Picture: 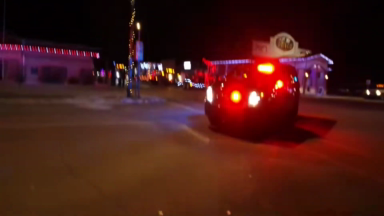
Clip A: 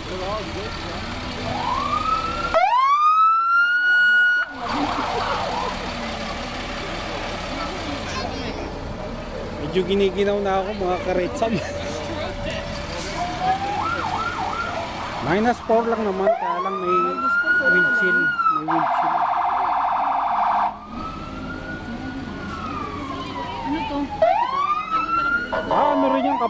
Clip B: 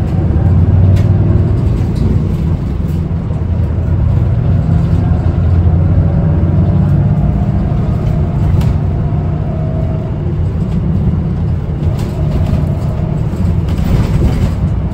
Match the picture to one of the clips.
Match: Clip A